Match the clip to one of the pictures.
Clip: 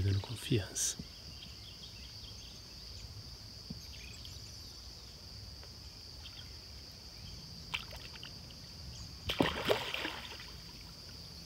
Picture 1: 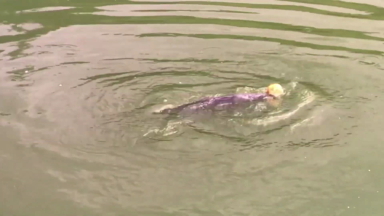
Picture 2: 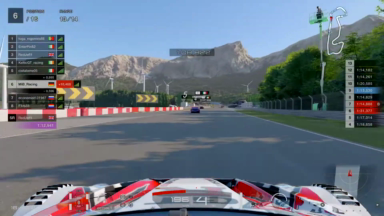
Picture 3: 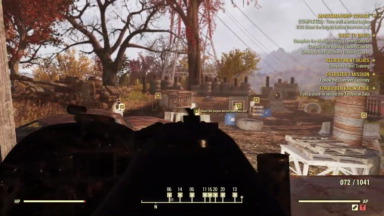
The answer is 1